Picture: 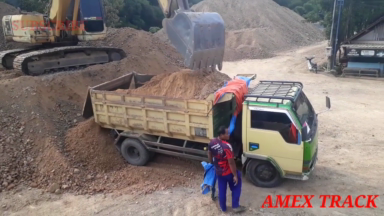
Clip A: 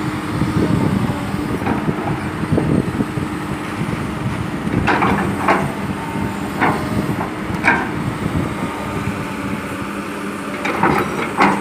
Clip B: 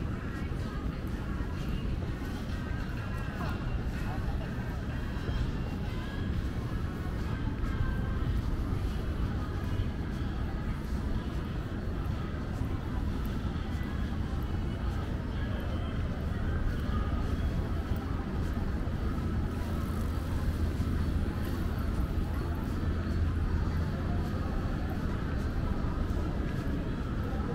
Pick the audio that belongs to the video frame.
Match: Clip A